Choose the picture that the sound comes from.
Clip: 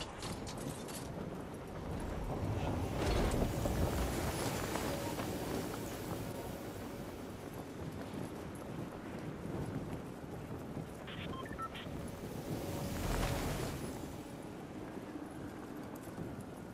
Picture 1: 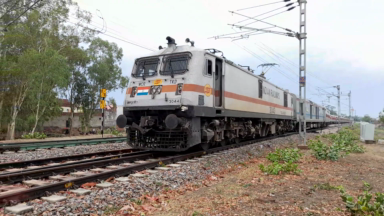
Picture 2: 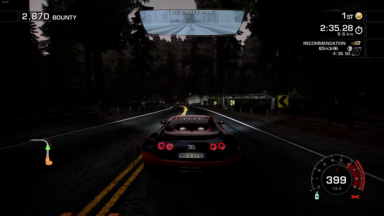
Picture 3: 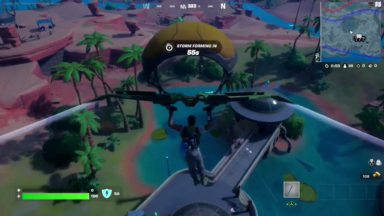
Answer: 3